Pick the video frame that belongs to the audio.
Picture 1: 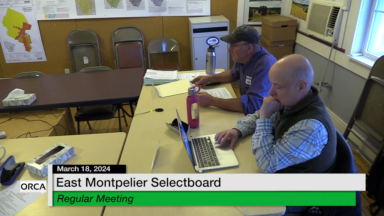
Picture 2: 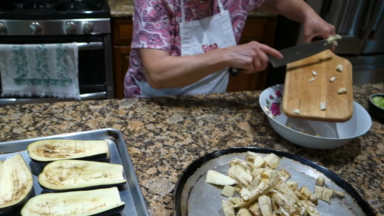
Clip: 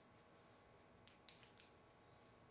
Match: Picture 1